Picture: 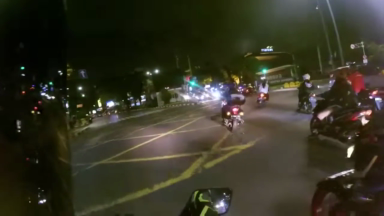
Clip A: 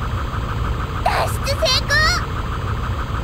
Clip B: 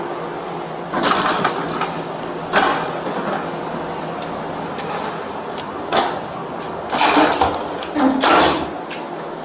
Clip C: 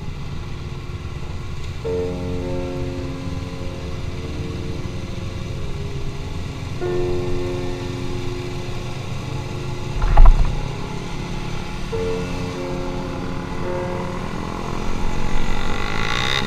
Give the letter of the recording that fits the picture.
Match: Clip C